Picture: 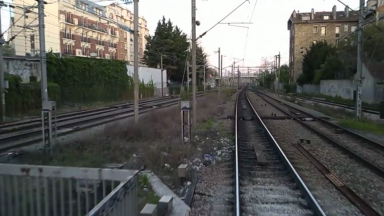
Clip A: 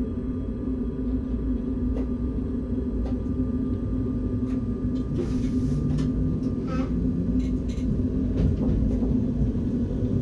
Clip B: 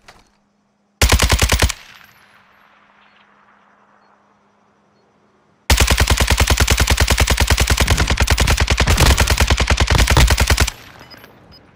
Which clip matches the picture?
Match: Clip A